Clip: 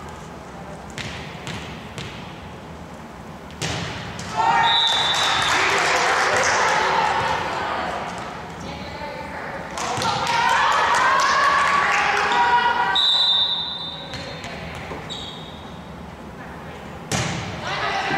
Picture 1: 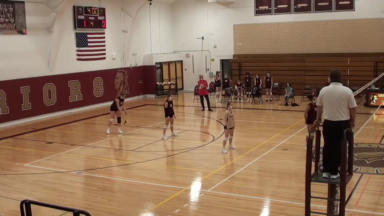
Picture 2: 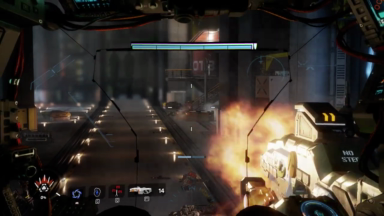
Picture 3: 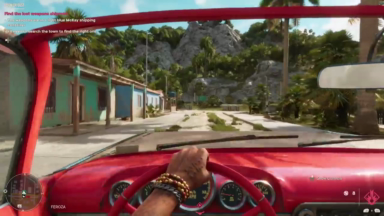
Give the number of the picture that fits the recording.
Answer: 1